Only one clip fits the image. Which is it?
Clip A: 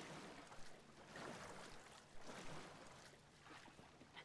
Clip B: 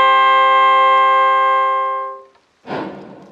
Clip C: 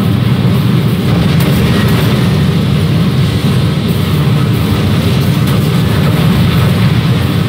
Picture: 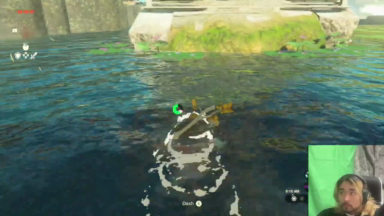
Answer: A